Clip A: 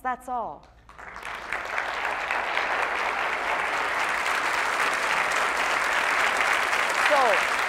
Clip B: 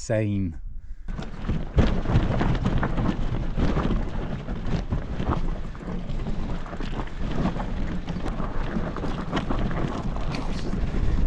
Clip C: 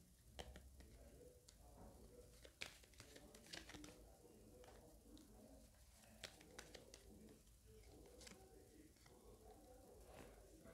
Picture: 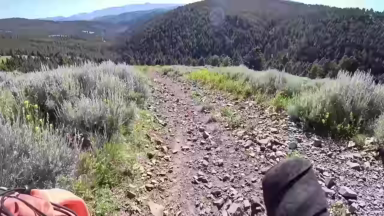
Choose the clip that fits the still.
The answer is B